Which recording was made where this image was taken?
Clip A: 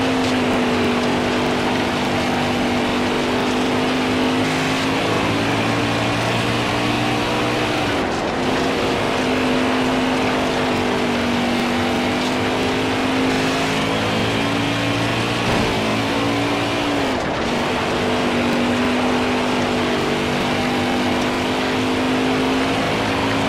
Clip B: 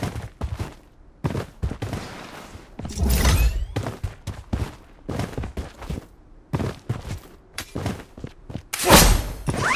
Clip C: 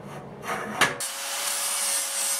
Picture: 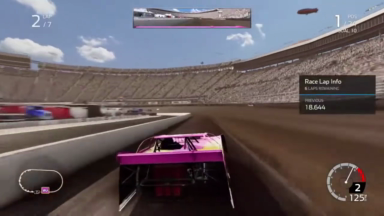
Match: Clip A